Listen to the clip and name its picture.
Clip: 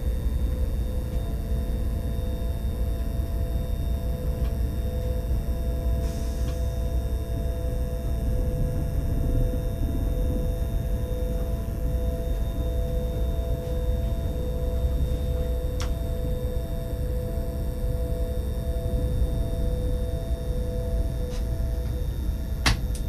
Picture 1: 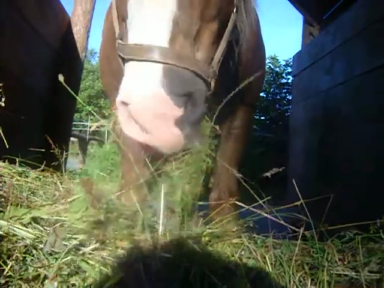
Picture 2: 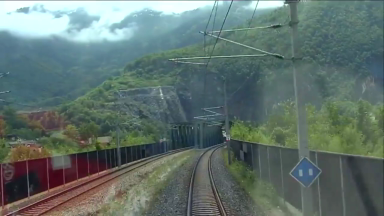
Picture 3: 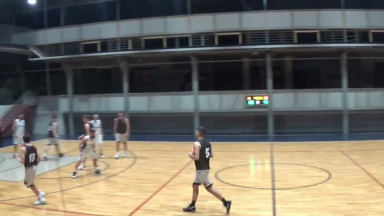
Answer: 2